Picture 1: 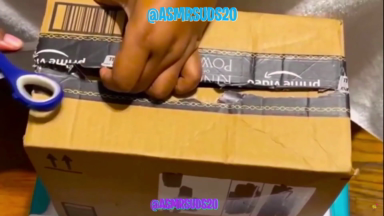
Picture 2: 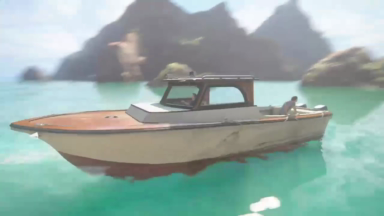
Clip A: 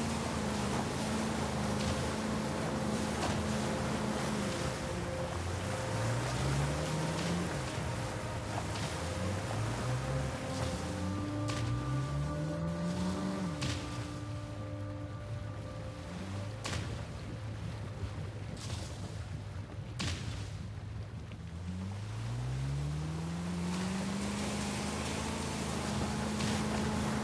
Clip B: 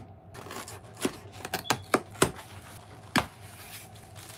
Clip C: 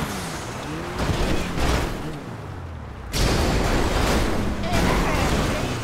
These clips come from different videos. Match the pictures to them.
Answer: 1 B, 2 A